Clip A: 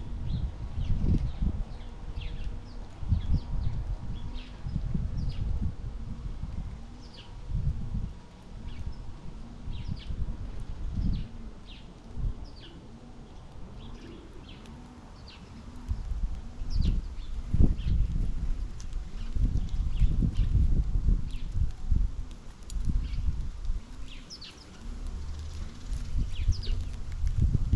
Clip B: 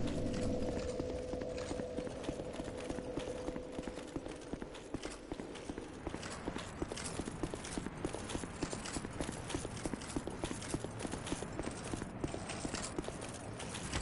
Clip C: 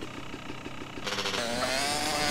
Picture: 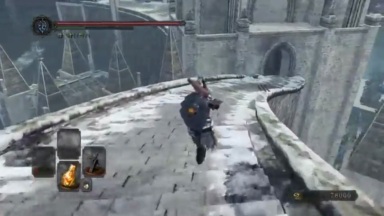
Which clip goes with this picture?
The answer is B